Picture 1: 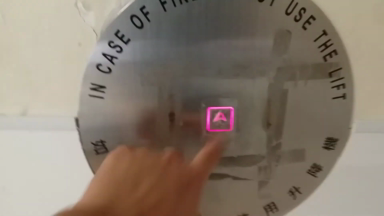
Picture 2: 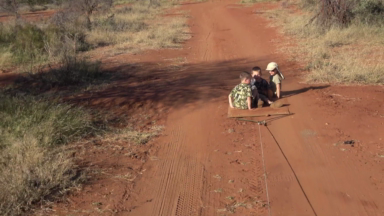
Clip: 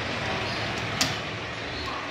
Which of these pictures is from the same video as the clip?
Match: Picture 1